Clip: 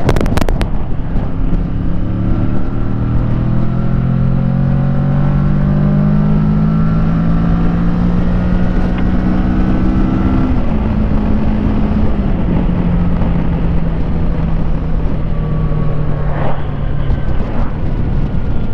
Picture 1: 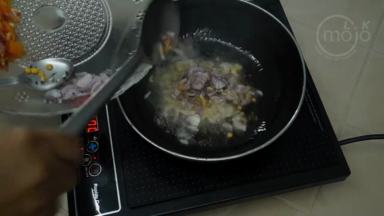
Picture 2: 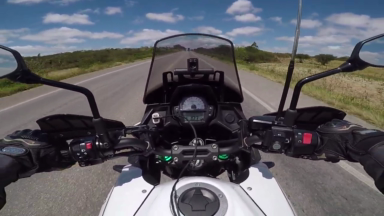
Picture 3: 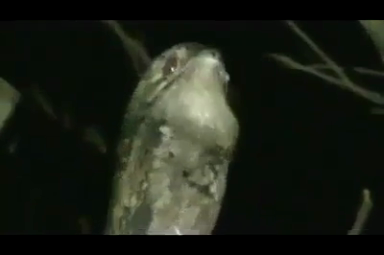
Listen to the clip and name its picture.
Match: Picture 2